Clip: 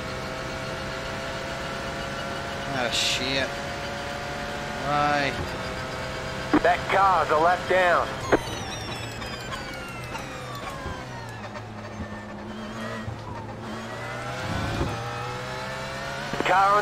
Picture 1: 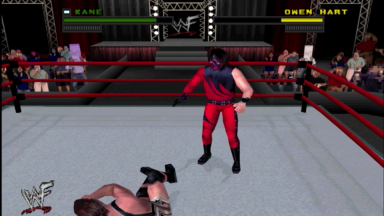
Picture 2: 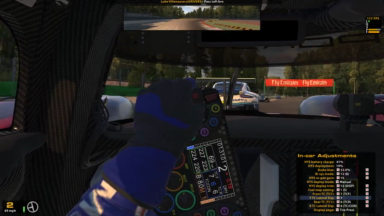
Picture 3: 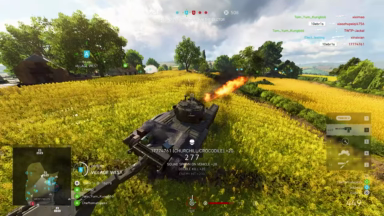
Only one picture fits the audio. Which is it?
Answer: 2